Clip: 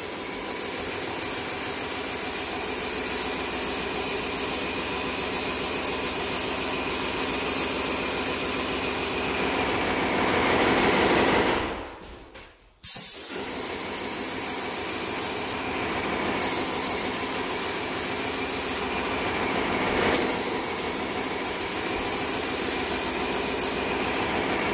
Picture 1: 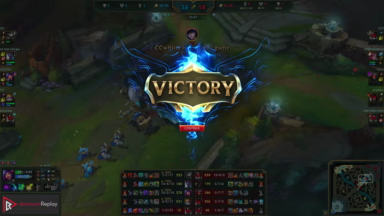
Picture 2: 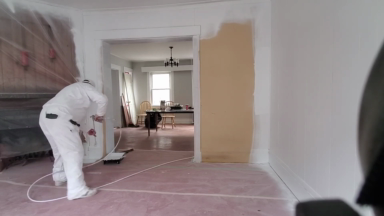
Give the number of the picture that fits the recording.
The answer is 2